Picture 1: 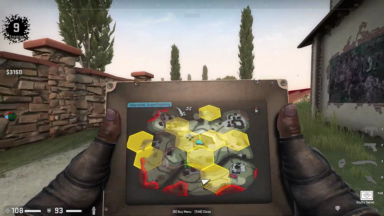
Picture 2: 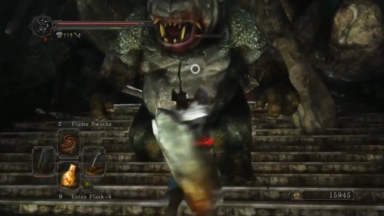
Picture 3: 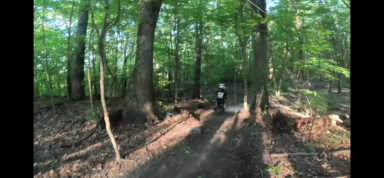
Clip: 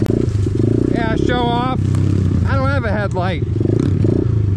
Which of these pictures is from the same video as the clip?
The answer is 3